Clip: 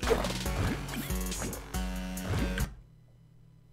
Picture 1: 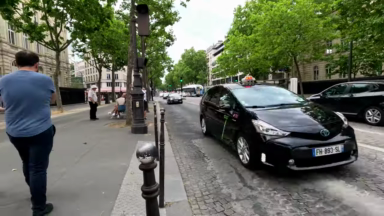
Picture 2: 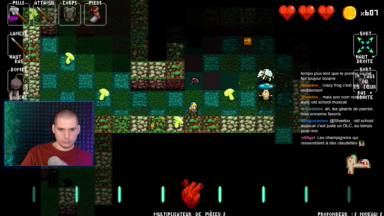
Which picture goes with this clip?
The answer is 2